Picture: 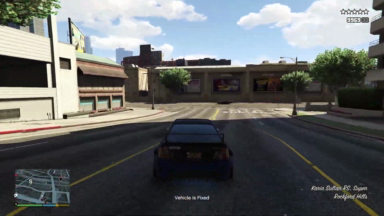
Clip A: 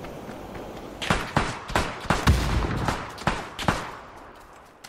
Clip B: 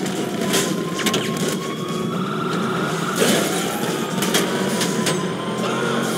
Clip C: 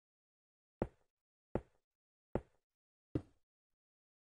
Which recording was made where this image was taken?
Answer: B